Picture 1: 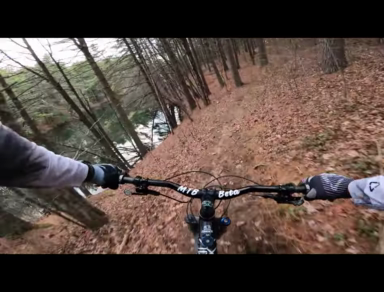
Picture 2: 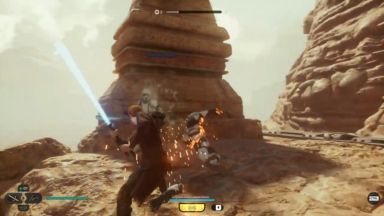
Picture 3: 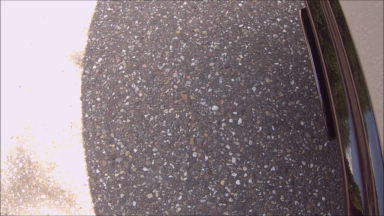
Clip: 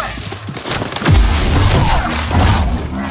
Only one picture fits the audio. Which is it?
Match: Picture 2